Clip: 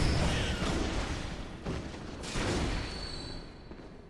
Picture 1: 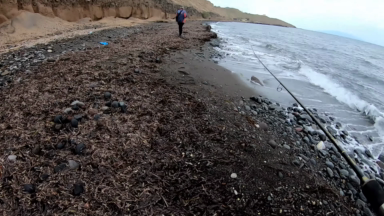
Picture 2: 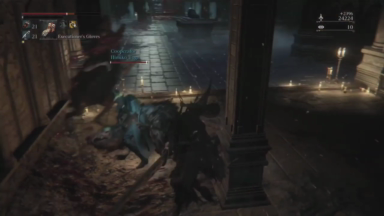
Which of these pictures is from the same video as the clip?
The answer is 2